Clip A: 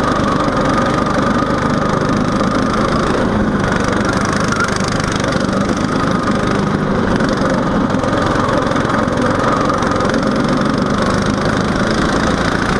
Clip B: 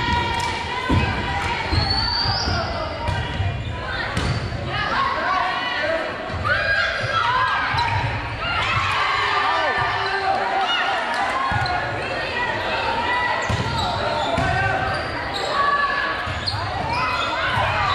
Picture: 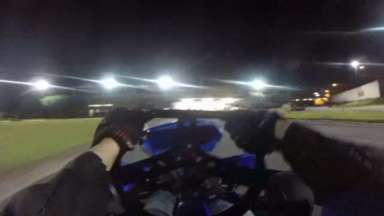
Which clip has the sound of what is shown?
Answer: A